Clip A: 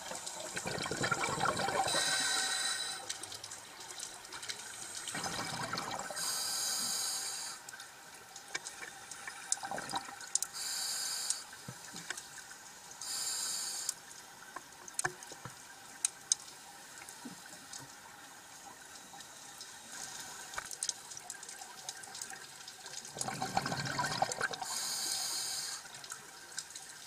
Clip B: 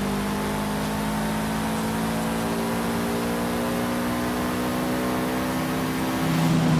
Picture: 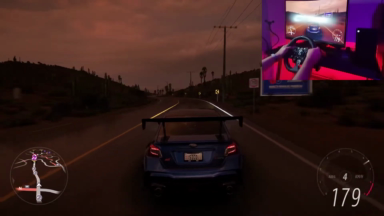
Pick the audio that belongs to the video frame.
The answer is B